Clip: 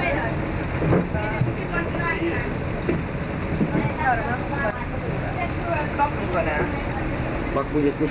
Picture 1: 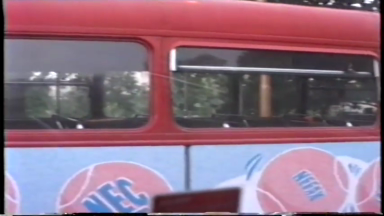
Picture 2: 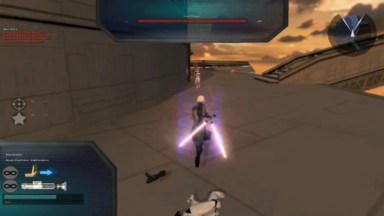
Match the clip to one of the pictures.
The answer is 1